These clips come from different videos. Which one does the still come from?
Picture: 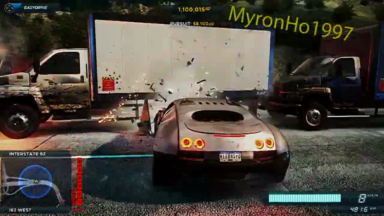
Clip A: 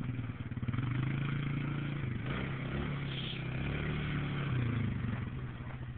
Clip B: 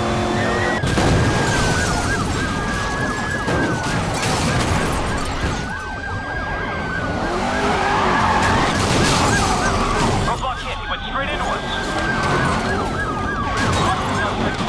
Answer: B